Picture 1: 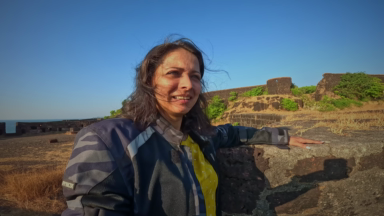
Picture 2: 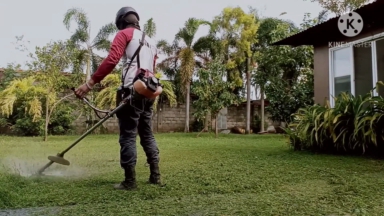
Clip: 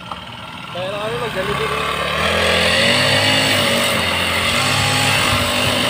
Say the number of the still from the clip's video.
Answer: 2